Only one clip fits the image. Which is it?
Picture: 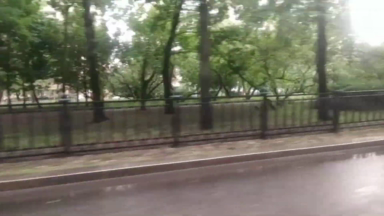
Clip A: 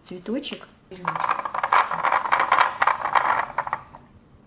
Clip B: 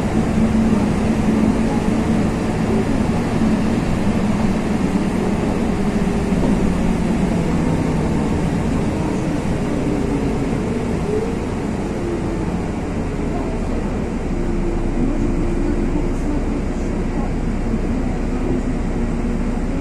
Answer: B